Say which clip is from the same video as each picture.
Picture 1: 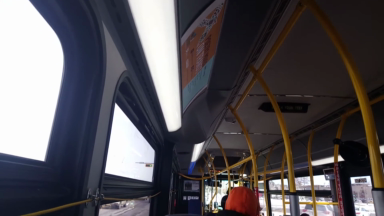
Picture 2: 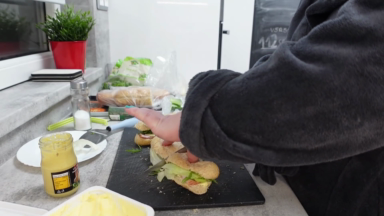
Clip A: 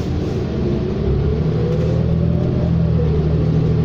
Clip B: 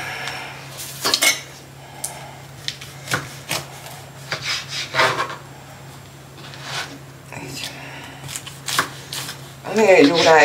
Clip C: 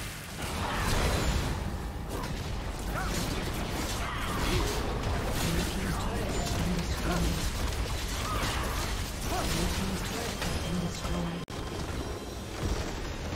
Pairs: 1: A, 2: B